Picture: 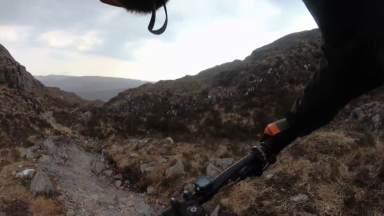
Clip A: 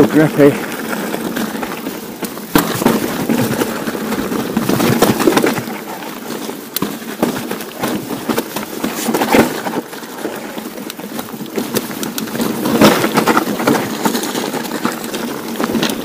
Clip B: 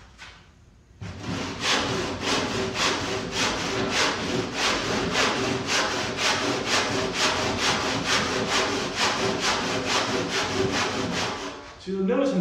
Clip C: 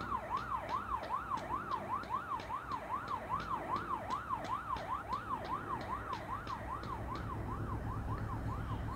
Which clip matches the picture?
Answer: A